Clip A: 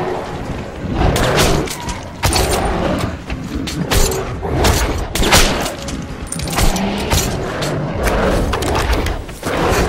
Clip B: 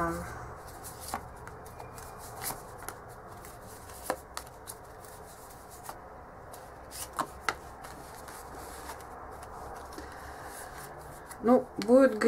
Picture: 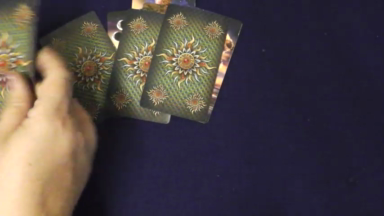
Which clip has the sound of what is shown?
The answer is B